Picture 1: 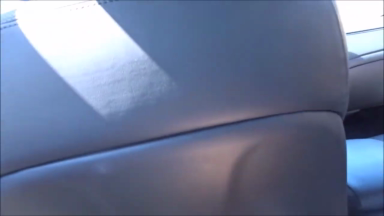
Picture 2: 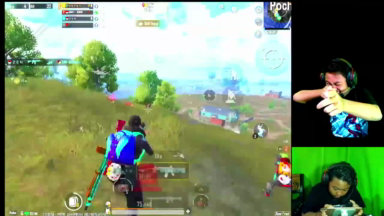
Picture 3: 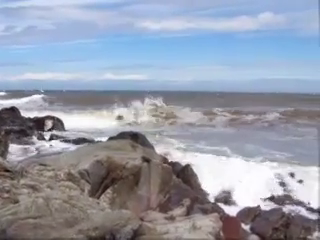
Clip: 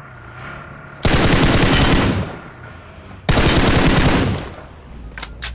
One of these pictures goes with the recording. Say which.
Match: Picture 2